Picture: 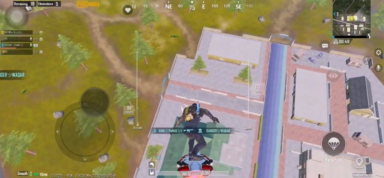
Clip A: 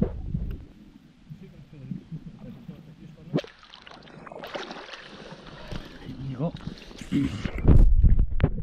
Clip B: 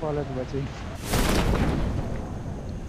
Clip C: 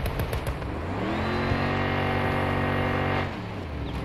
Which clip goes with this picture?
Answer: B